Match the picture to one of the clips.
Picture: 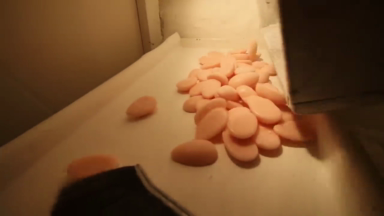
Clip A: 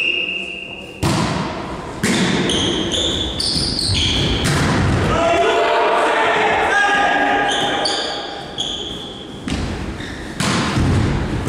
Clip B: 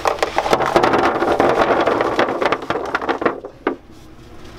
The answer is B